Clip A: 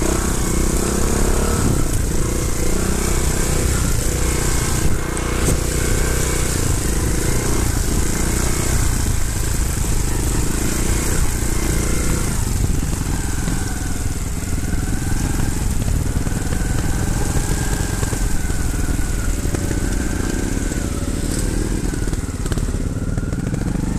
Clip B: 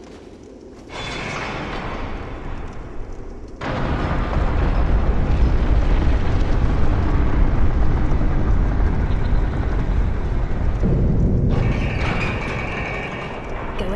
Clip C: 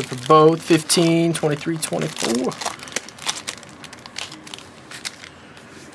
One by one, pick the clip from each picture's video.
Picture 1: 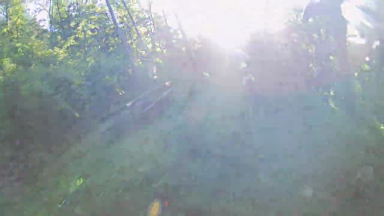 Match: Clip A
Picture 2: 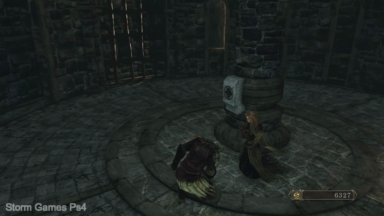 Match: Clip B